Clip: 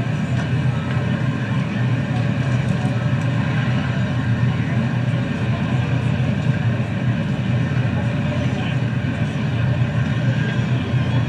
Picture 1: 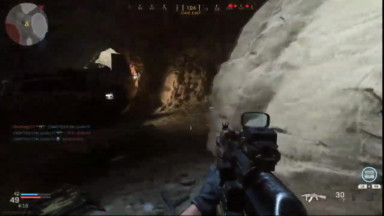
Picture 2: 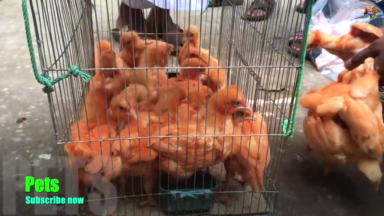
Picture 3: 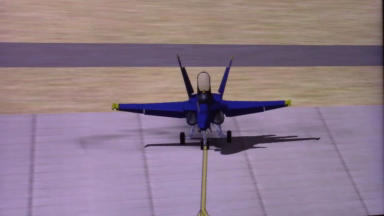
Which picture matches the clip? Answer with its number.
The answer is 3